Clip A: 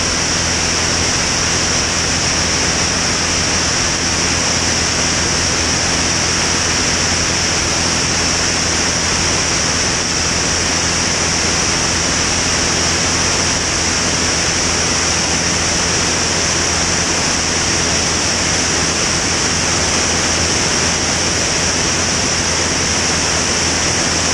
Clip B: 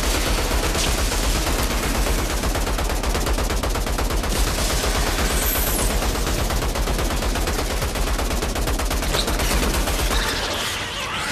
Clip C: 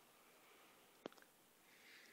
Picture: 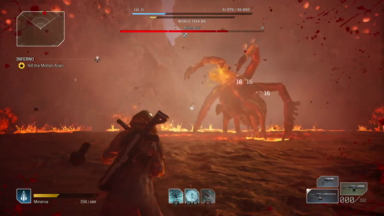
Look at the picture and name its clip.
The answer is B